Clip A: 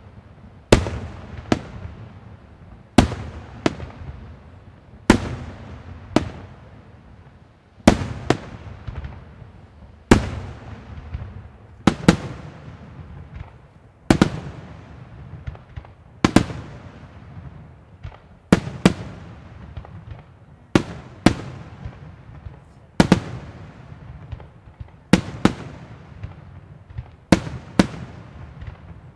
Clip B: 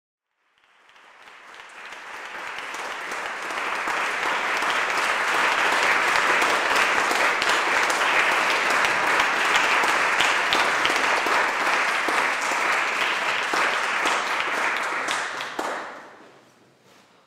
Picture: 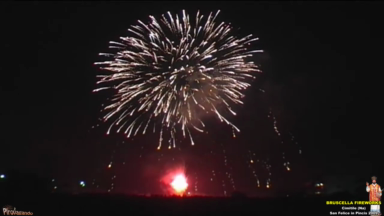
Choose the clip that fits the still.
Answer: A